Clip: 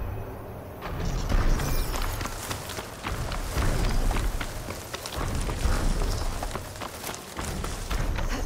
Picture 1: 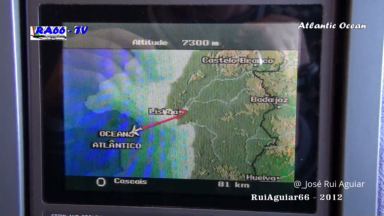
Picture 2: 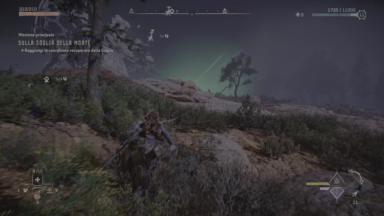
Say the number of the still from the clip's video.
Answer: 2